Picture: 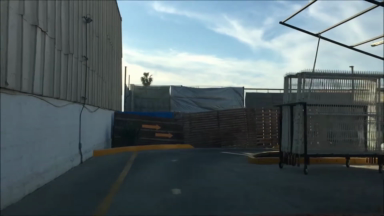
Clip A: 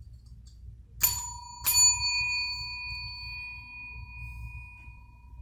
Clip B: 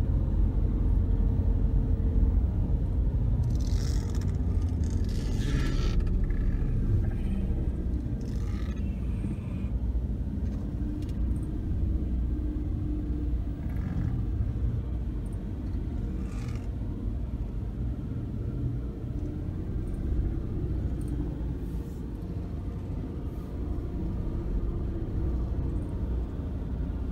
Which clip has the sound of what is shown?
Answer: B